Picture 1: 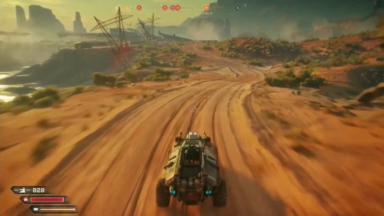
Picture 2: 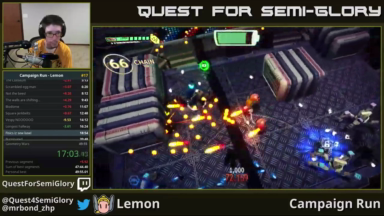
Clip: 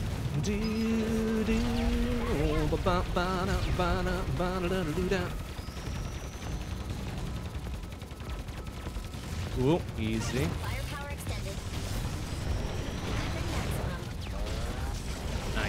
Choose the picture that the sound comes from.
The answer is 2